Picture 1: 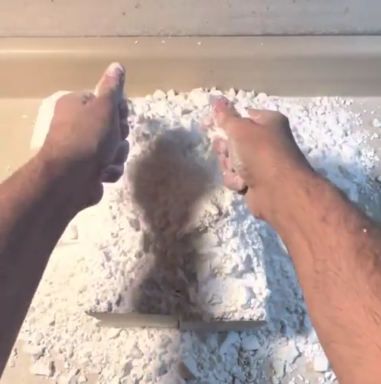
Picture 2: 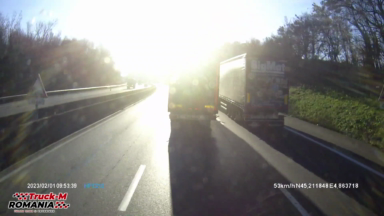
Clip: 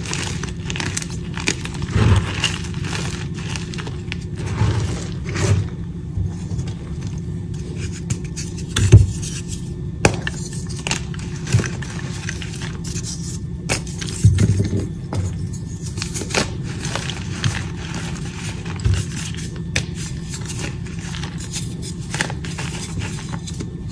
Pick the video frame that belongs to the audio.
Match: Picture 1